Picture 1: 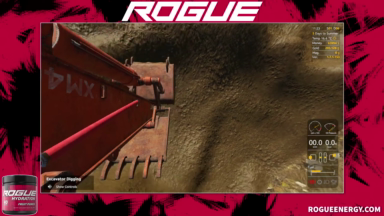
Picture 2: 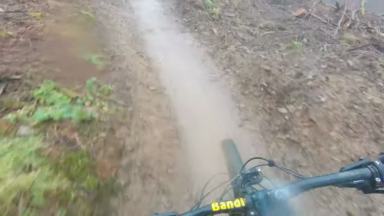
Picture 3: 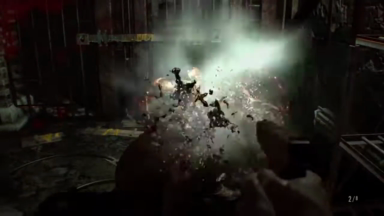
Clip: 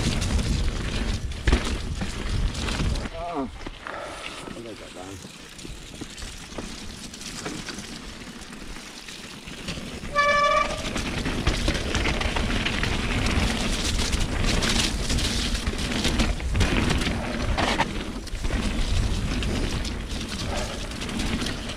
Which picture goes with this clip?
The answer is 2